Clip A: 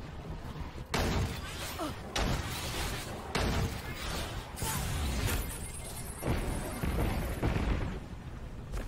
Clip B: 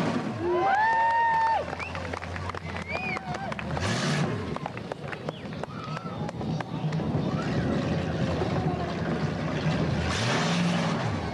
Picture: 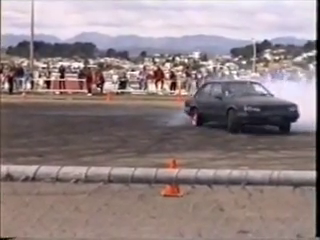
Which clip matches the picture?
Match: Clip B